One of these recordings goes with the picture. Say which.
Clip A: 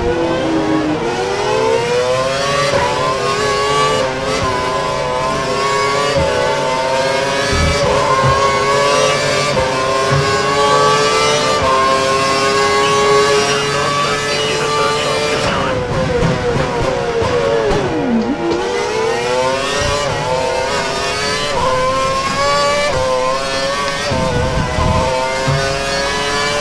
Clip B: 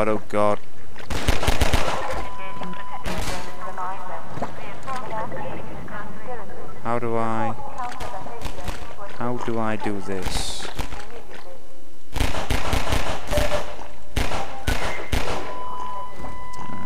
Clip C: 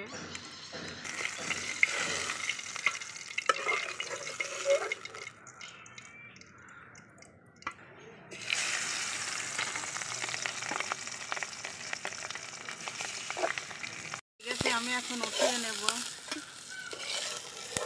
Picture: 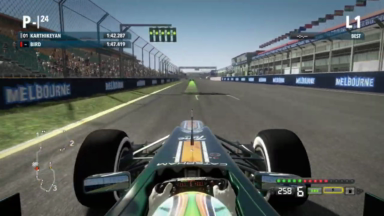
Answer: A